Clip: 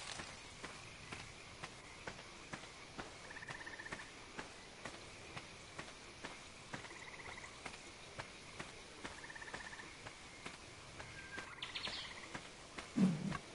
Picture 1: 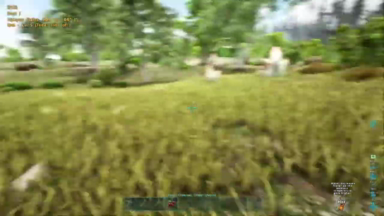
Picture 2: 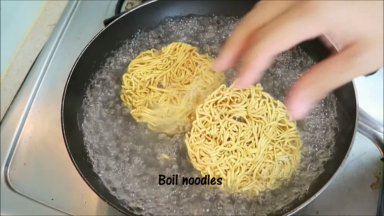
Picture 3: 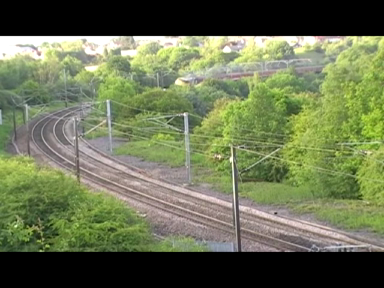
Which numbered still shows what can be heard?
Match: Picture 1